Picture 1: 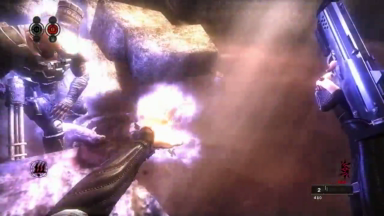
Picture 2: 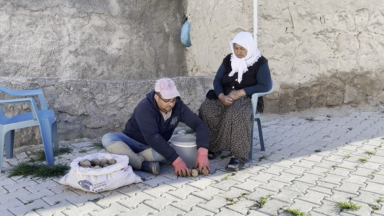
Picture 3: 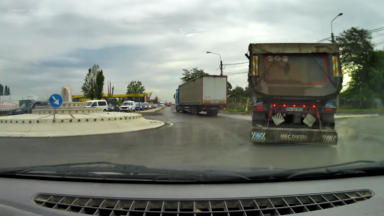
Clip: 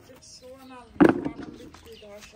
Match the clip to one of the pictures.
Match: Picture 2